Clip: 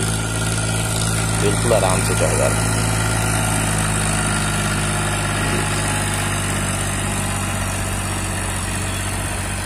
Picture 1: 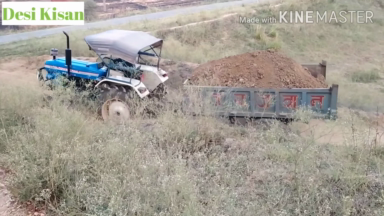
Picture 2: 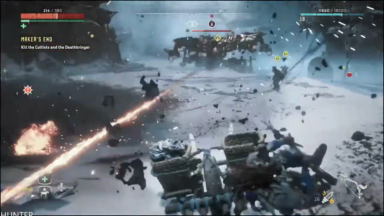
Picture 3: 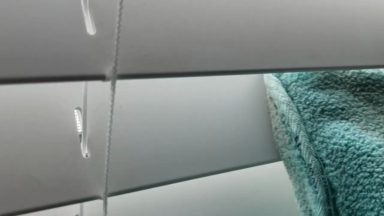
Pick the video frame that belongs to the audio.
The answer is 1